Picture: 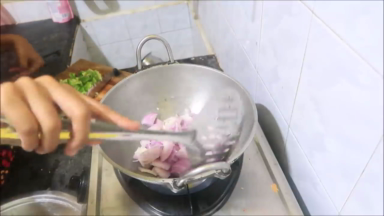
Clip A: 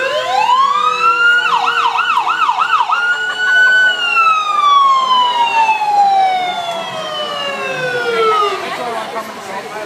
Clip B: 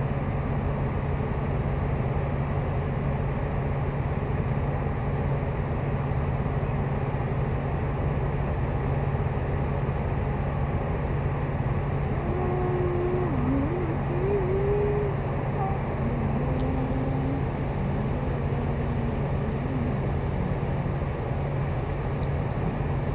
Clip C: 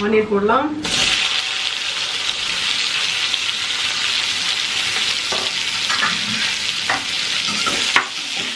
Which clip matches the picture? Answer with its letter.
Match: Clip C